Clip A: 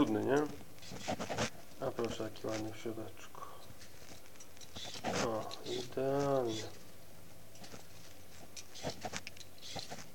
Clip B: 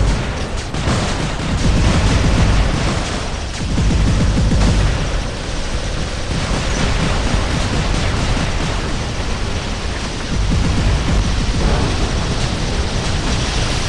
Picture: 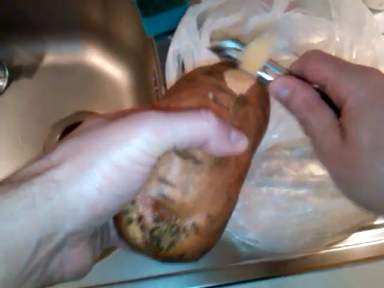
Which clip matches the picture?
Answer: A